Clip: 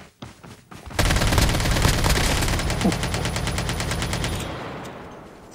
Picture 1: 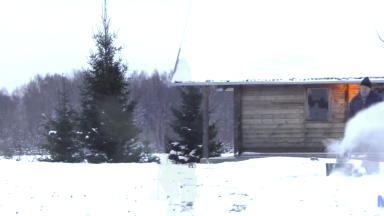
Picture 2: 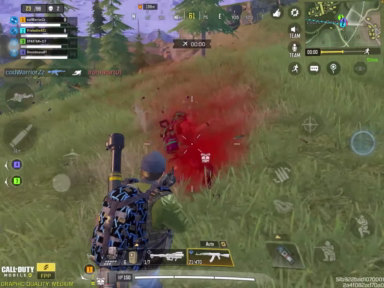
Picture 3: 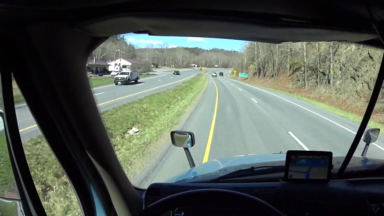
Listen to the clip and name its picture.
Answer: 2